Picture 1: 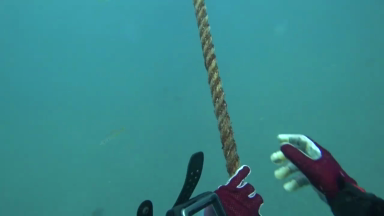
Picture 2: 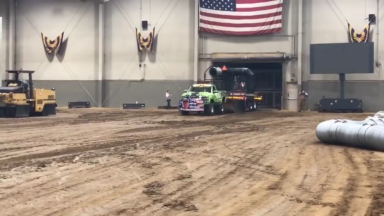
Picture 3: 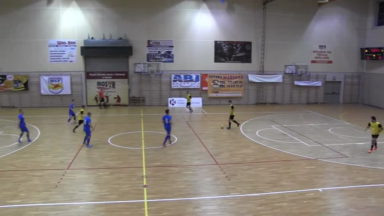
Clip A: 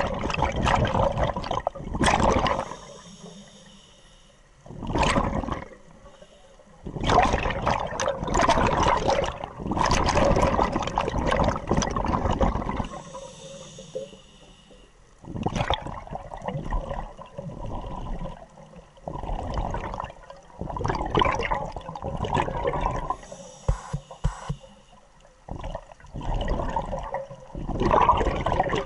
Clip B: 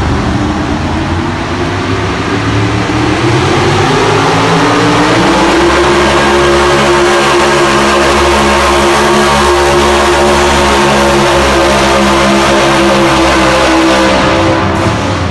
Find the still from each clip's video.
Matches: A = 1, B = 2